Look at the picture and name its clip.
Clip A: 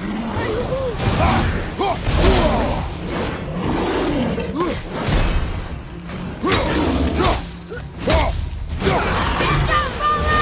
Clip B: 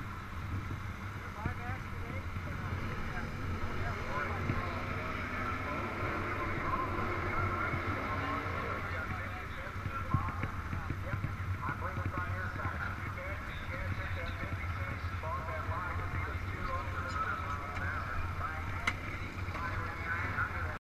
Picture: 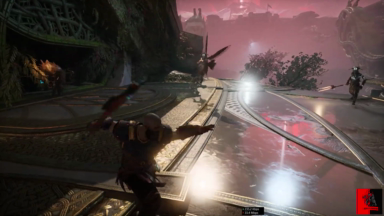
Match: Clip A